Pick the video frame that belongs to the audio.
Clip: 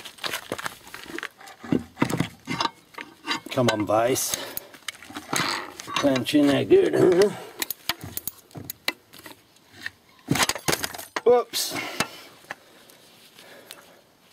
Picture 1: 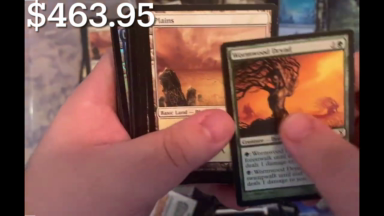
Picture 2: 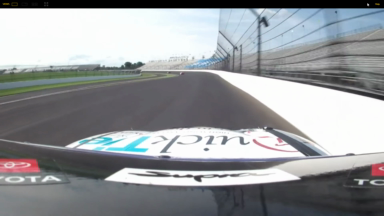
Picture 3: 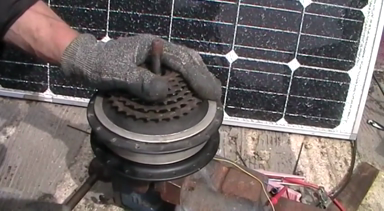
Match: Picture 3